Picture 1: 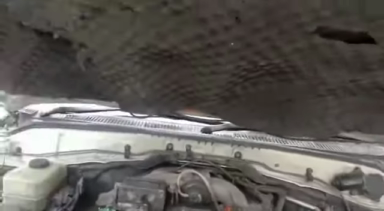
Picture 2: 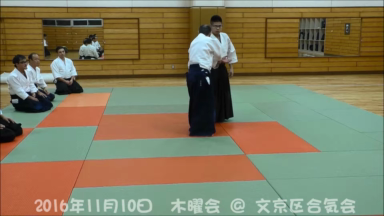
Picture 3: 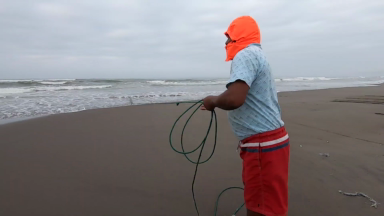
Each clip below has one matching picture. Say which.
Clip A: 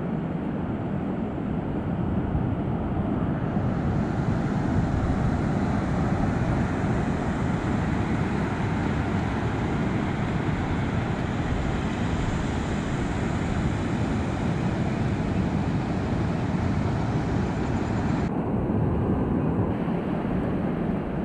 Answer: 3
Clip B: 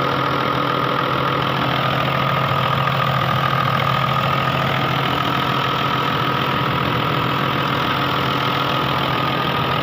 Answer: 1